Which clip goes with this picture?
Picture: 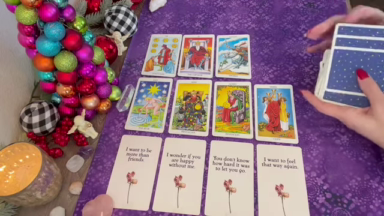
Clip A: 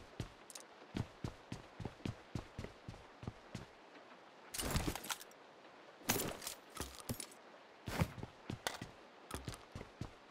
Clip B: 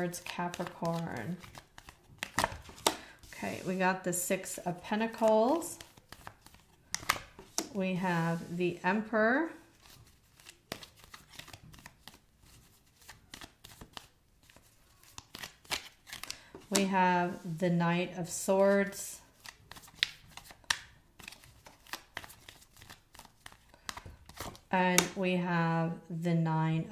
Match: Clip B